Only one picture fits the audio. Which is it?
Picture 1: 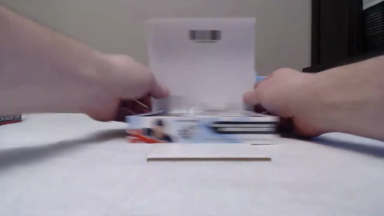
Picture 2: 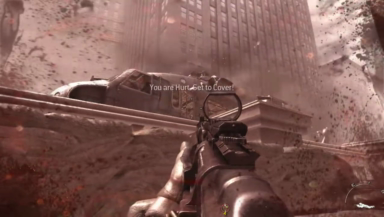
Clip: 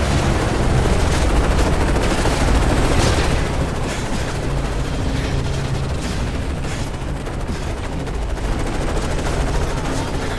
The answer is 2